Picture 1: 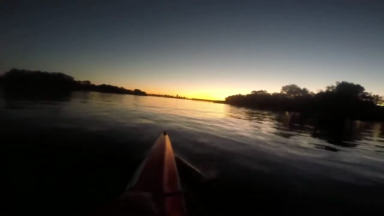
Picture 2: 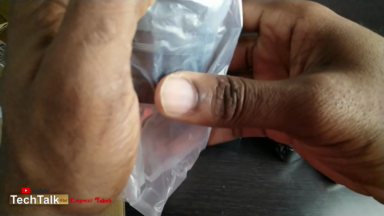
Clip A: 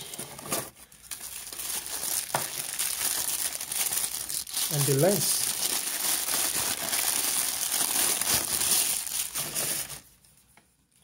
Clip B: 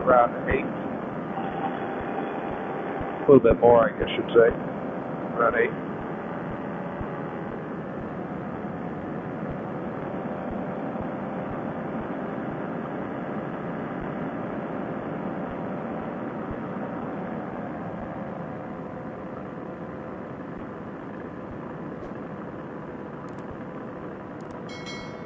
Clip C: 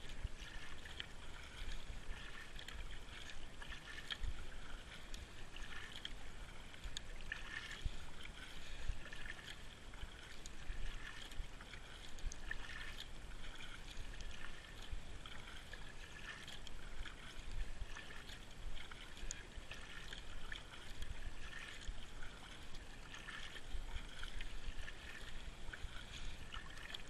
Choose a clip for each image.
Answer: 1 C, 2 A